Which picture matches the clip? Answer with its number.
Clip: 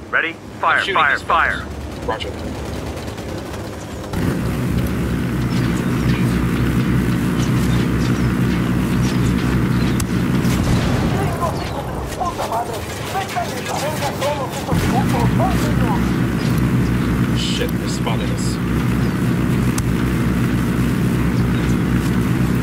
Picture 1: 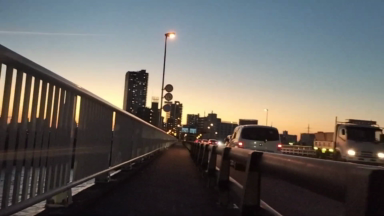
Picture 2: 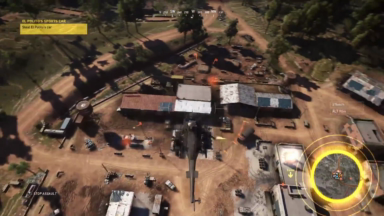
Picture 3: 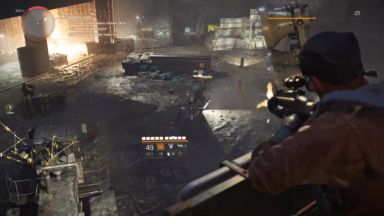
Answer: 2